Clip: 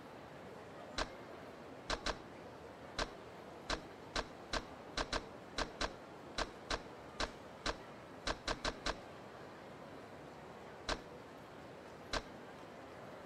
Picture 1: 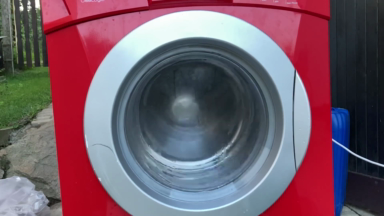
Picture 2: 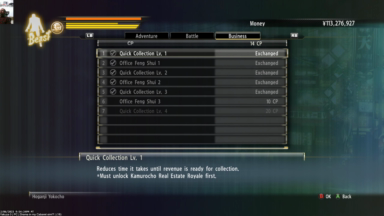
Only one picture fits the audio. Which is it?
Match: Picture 2